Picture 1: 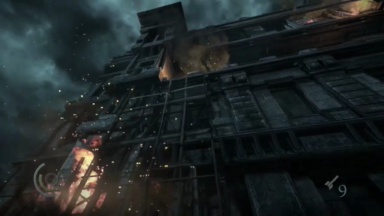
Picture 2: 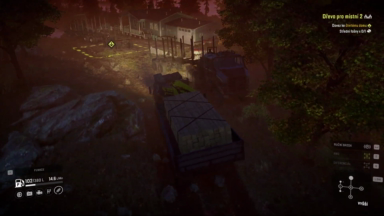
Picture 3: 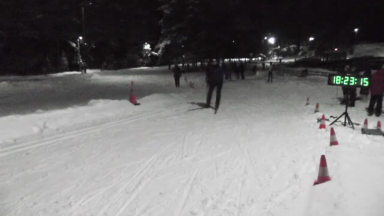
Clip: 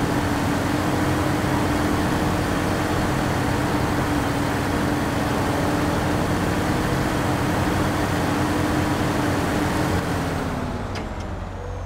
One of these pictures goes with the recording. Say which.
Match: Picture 2